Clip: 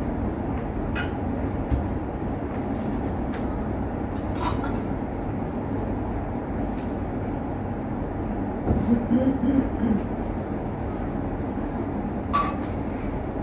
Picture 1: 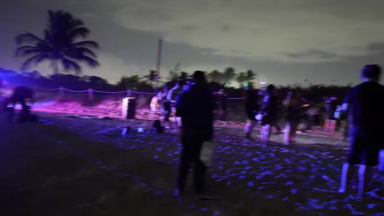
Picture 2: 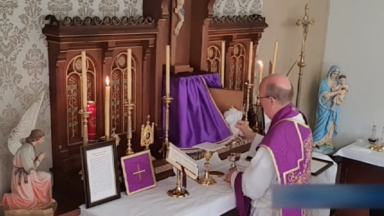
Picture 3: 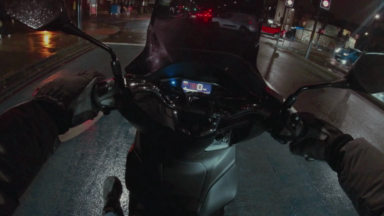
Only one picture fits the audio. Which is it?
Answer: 2